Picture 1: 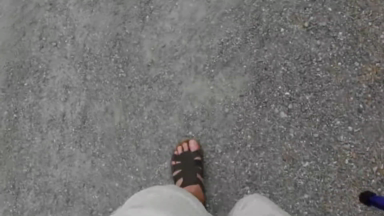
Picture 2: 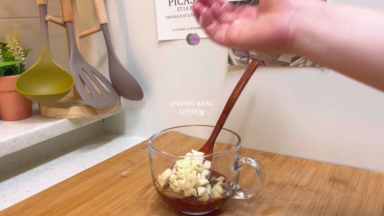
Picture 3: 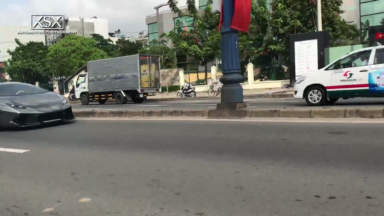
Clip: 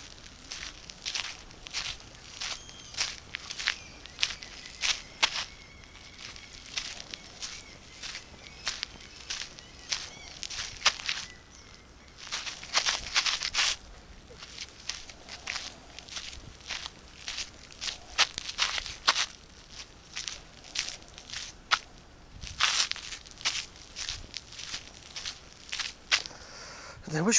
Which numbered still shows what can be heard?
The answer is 1